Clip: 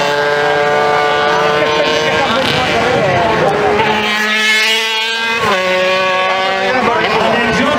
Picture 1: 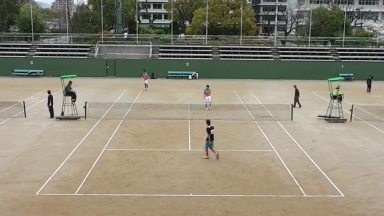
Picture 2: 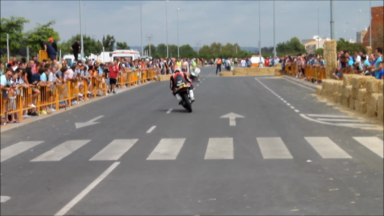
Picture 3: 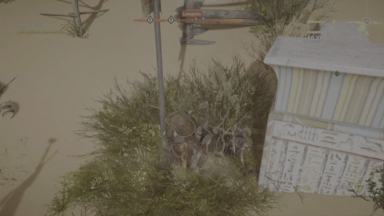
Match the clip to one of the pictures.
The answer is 2